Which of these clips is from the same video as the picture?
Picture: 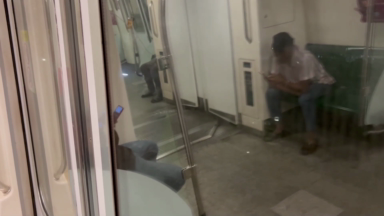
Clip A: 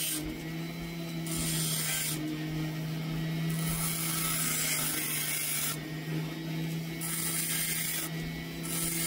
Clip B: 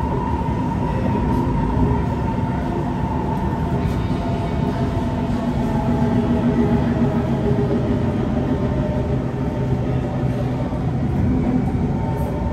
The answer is B